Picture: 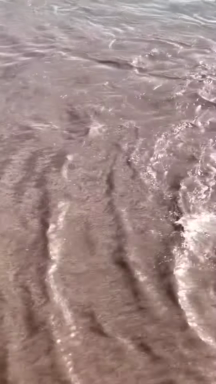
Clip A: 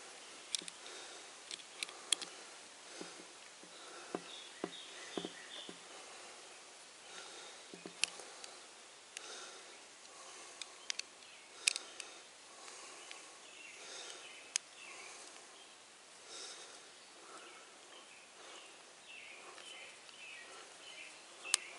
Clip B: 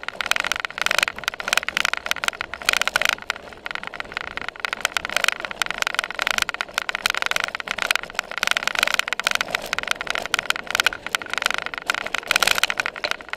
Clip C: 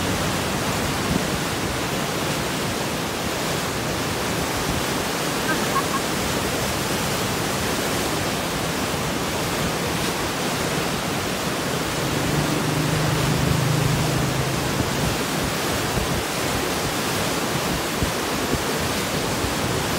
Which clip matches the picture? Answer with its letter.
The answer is C